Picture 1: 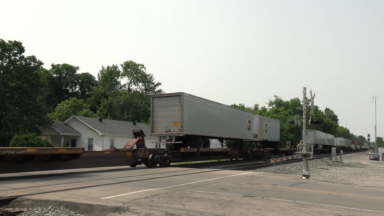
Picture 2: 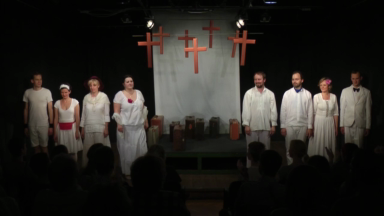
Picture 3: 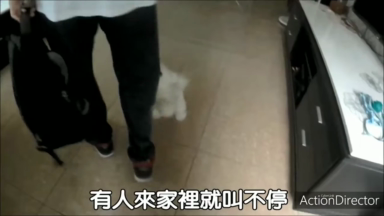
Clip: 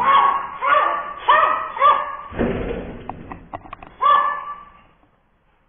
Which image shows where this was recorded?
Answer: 3